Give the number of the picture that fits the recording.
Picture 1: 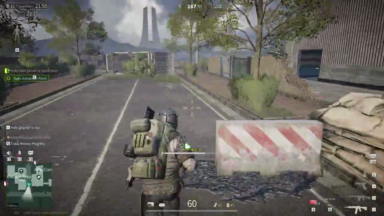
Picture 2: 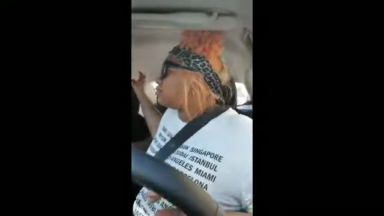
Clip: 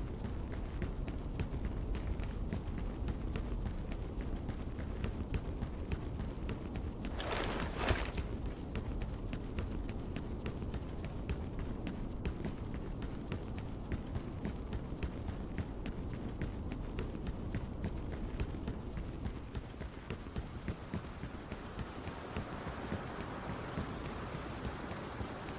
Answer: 1